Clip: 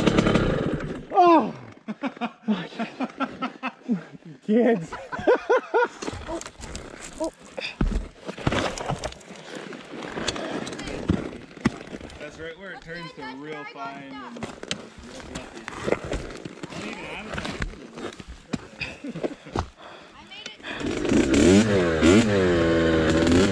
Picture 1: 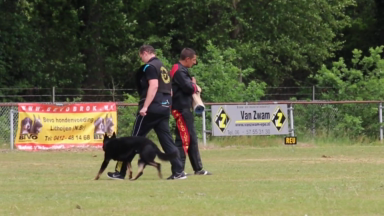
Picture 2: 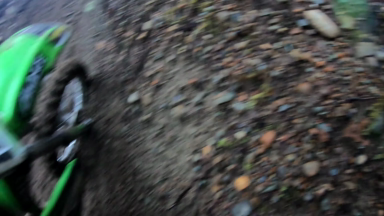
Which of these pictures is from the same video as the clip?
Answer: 2